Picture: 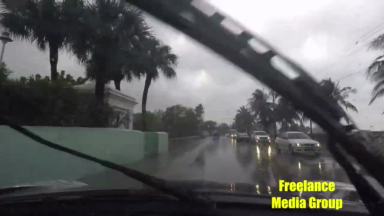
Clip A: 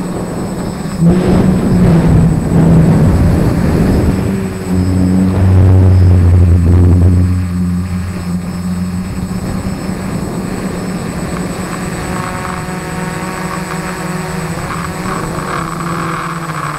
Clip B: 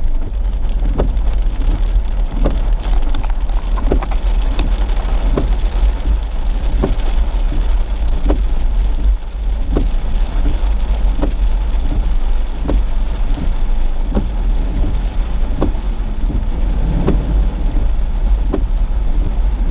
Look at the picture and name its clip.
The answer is B